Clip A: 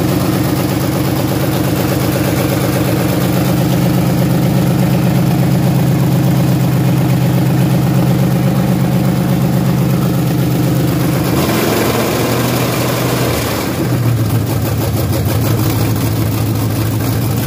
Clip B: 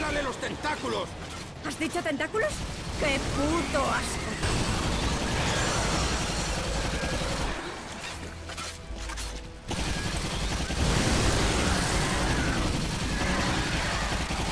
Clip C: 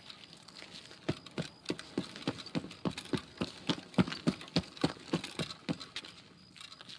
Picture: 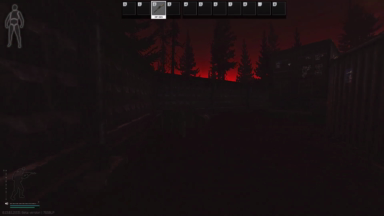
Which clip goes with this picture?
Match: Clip C